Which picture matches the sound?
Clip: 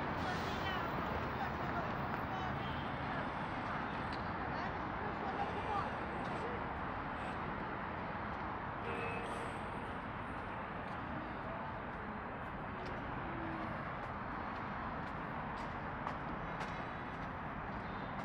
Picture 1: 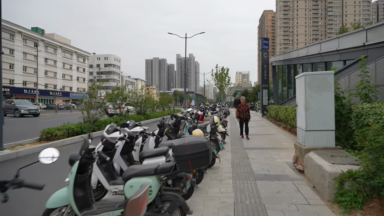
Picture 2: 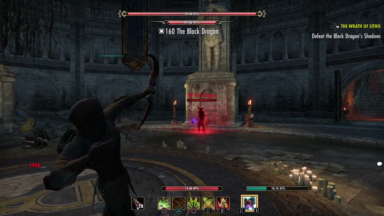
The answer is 1